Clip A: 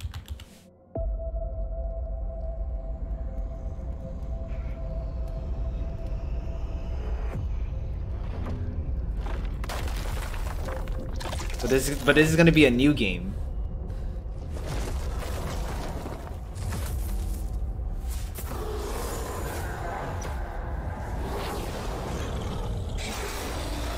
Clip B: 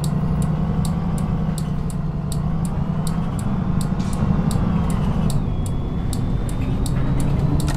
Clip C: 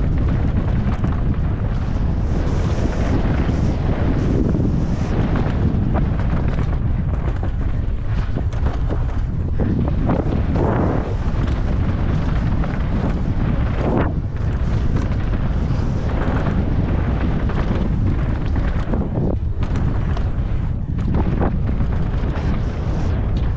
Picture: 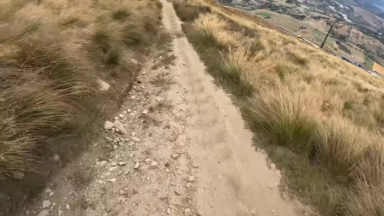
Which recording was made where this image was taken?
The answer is C